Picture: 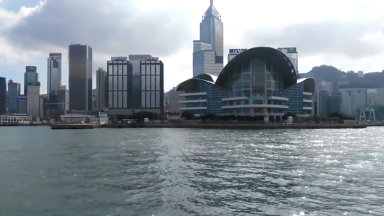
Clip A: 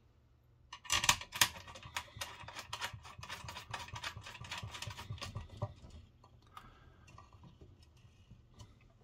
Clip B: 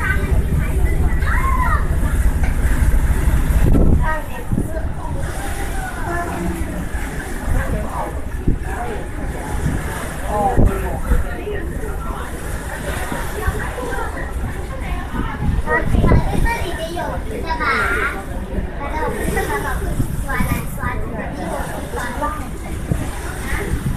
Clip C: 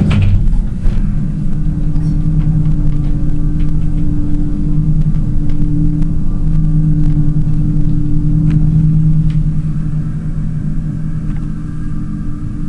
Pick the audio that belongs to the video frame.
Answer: B